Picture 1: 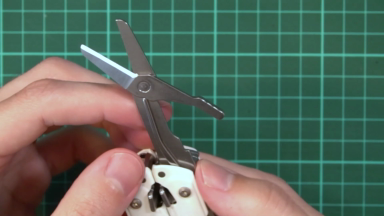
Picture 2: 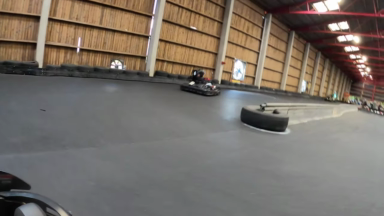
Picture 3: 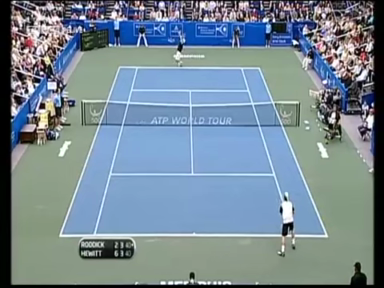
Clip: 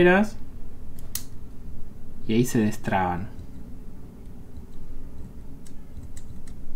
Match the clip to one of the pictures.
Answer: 1